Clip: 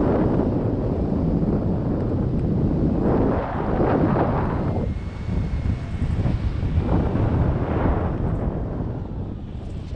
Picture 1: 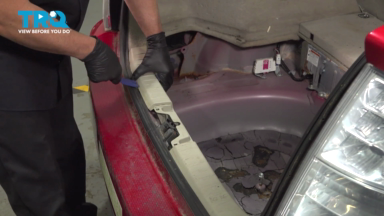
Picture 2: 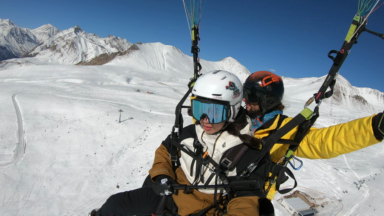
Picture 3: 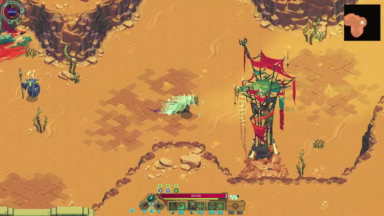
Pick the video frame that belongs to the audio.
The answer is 2